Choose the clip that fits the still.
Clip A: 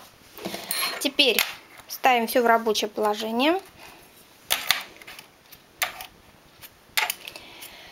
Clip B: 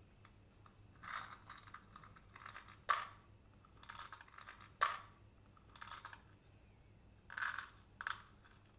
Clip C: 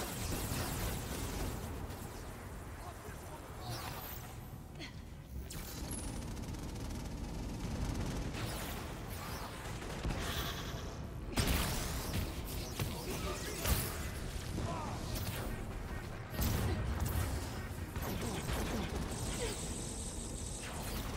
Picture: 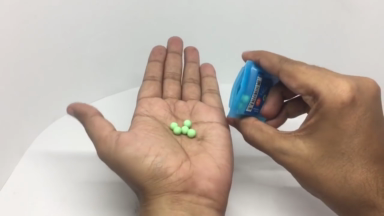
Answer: B